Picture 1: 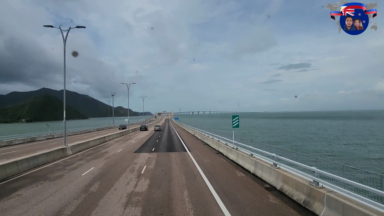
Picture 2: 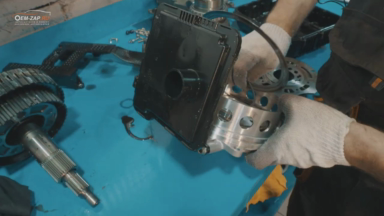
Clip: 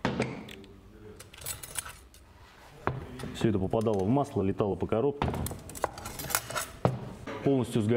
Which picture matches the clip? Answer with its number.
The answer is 2